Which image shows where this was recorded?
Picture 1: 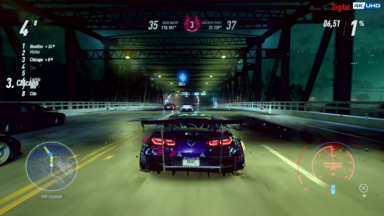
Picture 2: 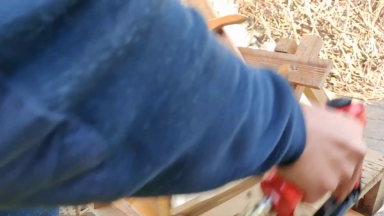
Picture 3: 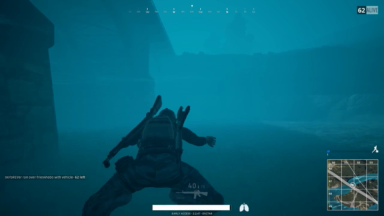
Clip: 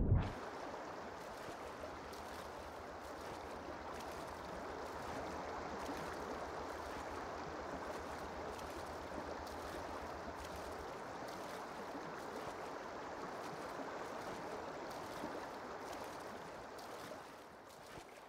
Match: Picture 3